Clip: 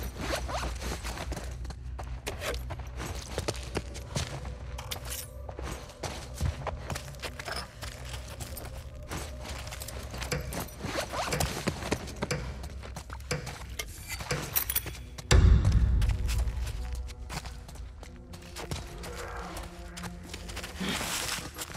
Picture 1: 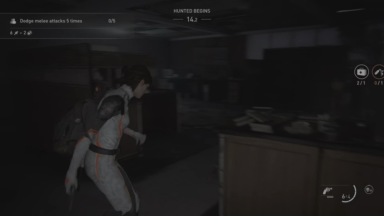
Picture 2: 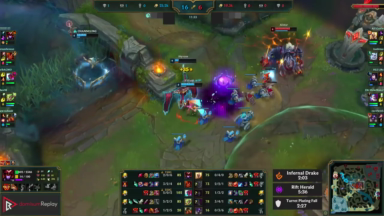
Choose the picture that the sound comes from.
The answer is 1